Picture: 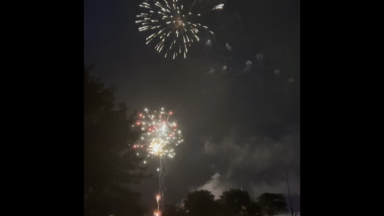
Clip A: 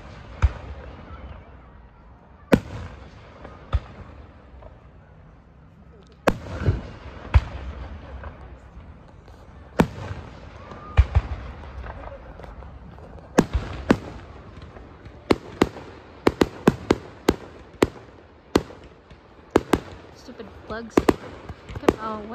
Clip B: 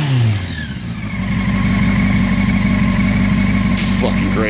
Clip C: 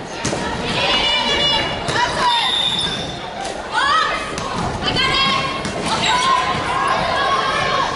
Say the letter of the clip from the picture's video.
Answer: A